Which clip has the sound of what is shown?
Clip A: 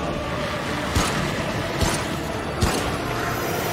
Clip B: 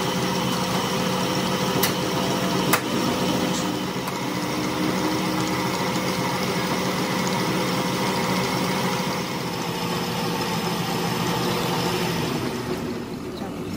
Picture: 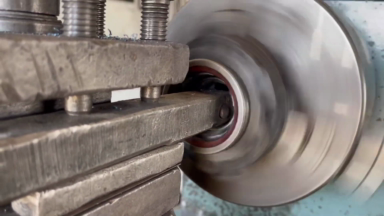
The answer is B